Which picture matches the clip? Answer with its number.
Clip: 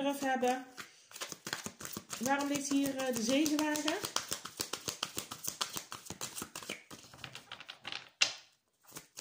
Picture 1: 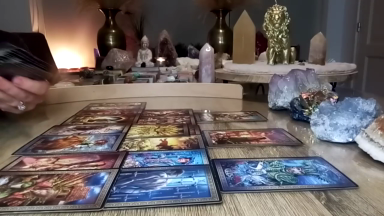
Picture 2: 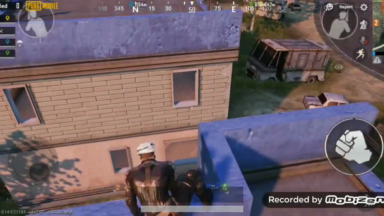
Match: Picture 1